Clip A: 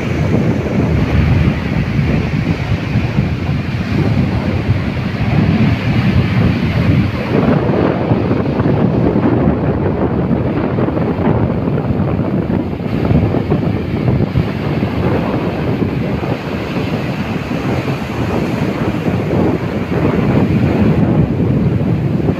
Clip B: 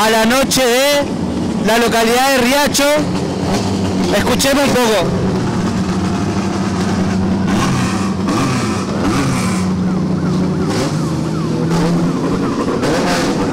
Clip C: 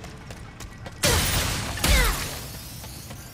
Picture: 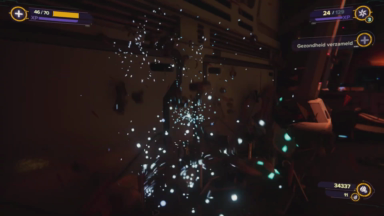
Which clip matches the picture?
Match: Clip C